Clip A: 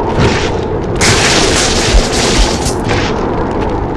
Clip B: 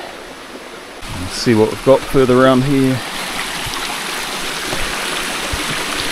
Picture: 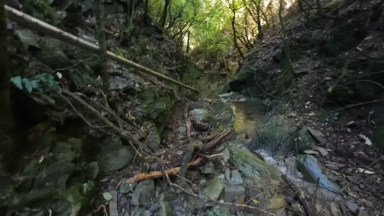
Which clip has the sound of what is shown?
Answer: B